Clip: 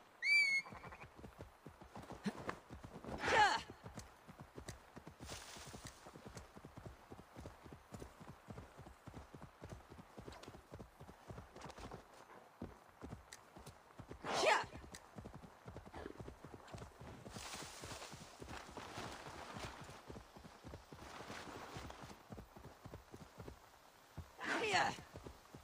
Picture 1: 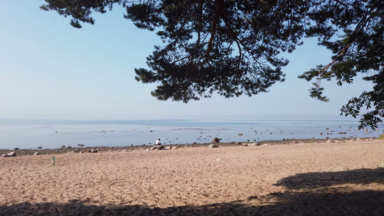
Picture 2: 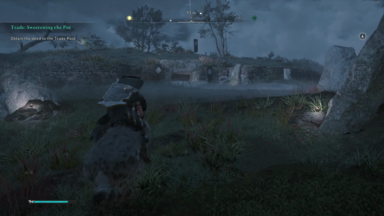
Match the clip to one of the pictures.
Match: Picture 2